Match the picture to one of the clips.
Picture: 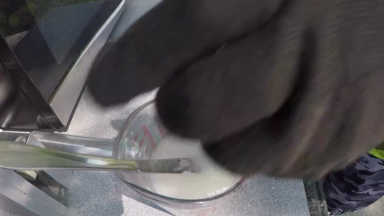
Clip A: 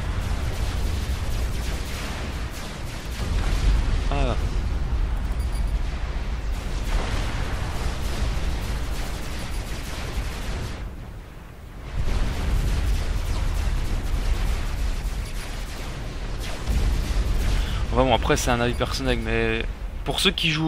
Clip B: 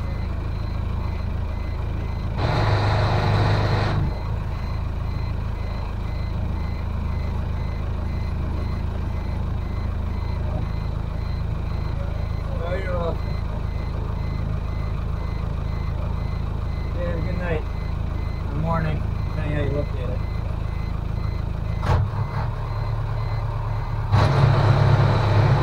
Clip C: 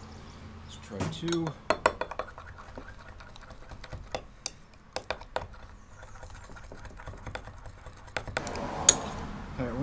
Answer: C